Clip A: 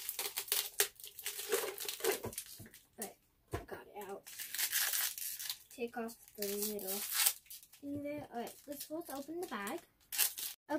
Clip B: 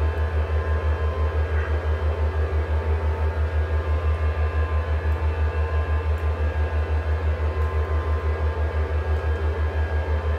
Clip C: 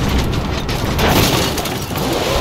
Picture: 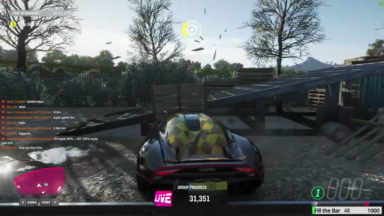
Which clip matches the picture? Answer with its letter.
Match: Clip C